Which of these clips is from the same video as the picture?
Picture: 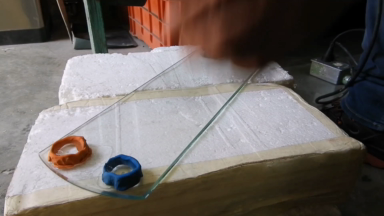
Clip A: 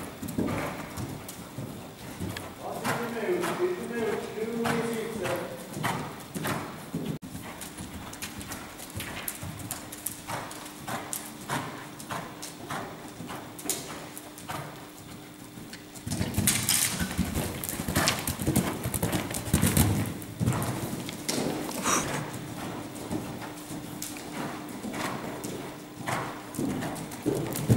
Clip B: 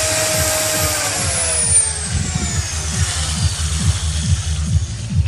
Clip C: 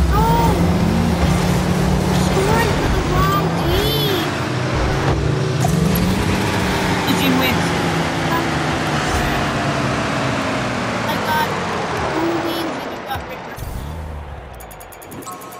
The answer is B